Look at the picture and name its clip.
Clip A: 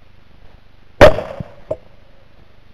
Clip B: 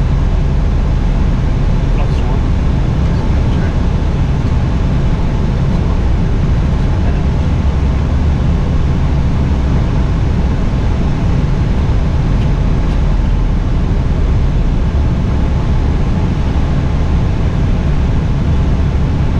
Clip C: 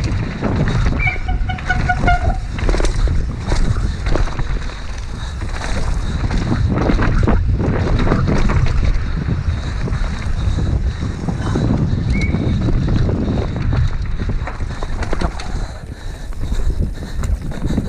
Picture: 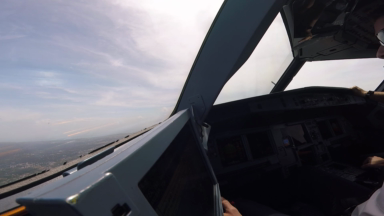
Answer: B